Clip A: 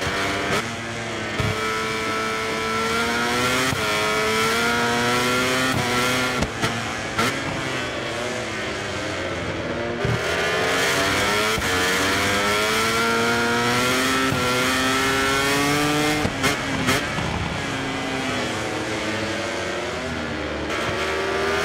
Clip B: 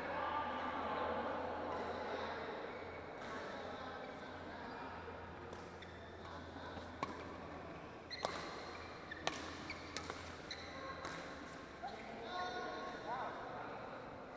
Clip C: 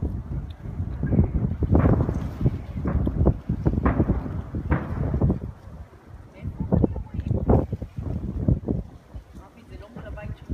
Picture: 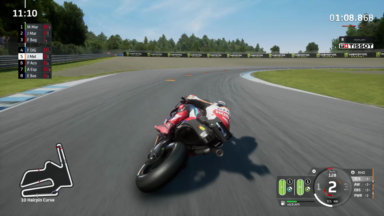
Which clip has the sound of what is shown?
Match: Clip A